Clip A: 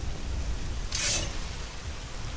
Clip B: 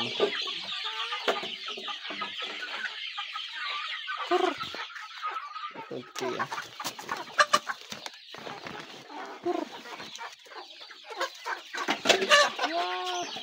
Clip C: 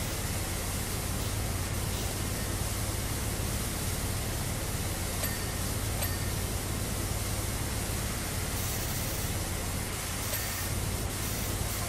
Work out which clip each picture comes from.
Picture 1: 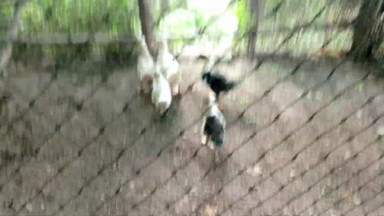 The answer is B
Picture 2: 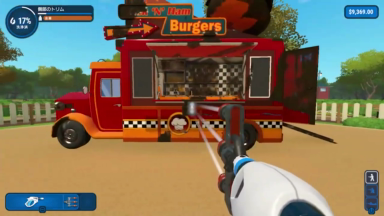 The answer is C